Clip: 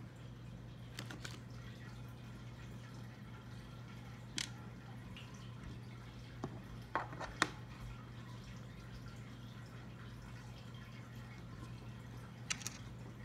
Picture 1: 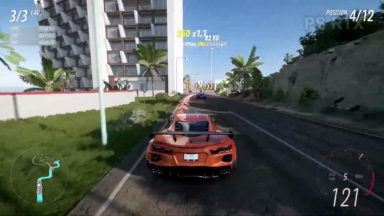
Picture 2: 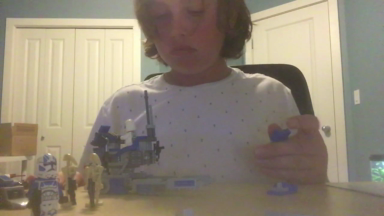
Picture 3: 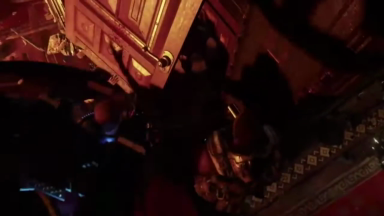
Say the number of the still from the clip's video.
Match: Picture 2